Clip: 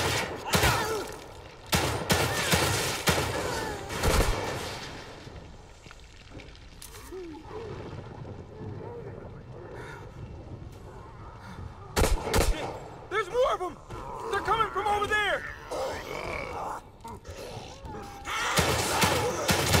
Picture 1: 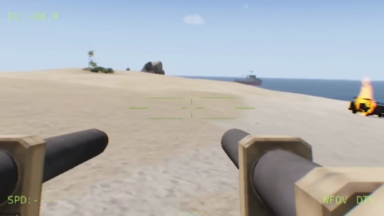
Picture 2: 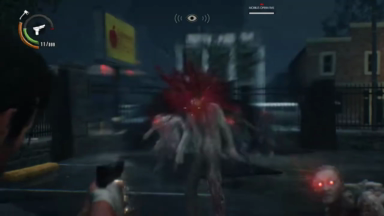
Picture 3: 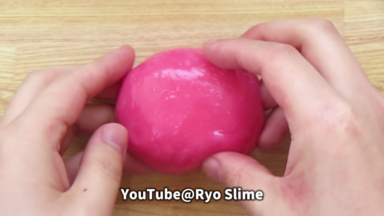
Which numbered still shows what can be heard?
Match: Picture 2